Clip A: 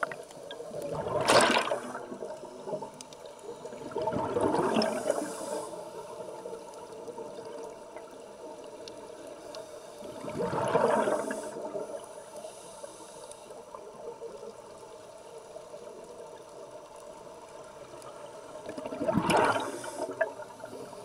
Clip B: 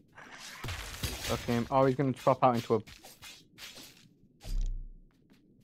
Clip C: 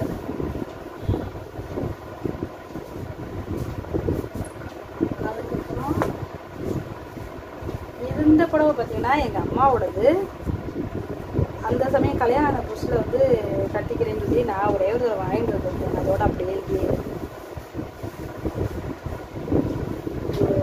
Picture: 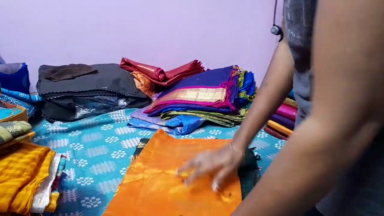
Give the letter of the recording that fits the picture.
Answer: C